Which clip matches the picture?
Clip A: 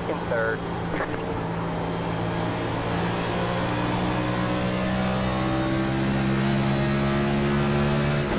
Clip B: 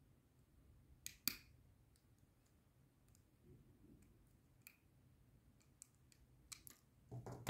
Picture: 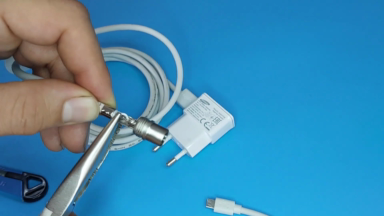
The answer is B